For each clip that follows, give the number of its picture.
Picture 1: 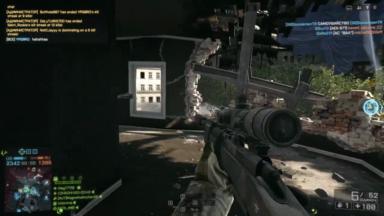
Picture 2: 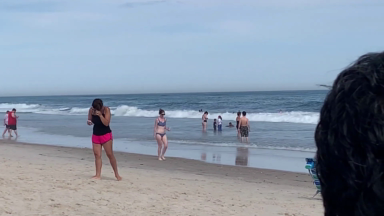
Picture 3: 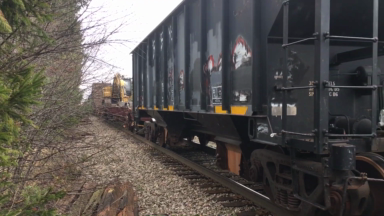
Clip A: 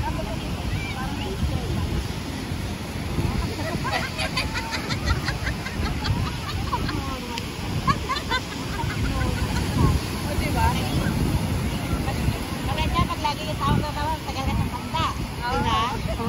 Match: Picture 2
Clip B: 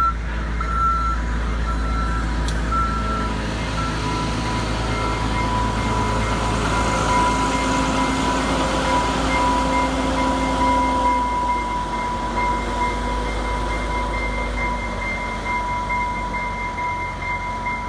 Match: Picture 3